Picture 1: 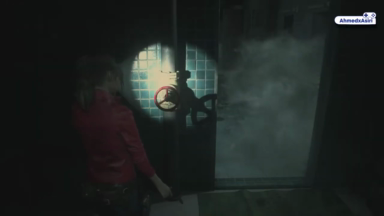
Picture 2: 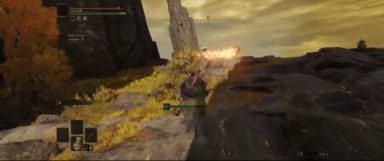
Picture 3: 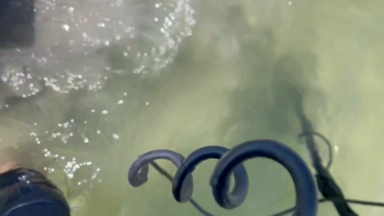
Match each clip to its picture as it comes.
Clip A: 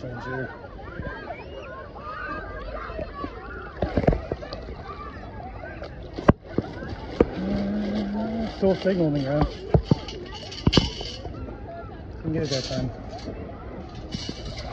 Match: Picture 3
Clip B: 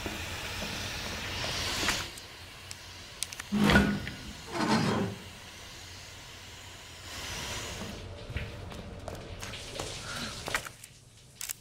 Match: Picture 1